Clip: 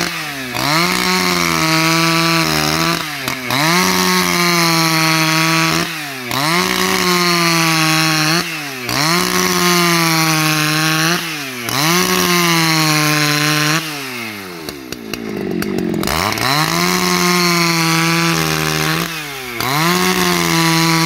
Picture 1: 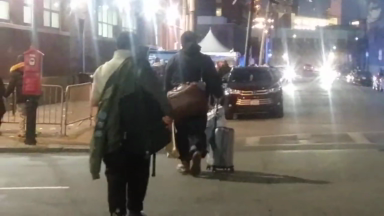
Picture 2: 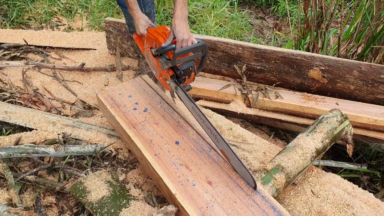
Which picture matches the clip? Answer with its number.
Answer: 2